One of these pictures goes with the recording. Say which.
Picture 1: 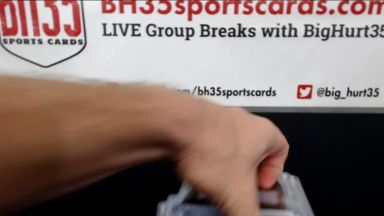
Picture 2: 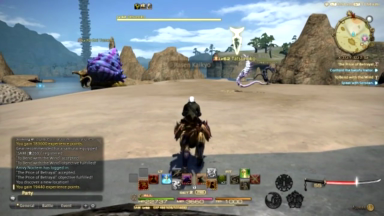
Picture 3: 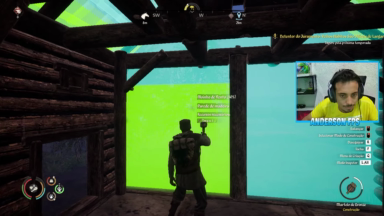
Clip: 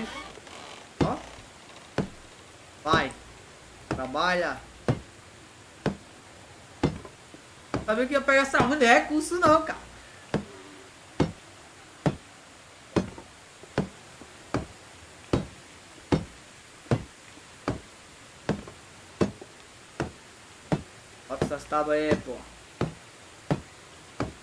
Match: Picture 3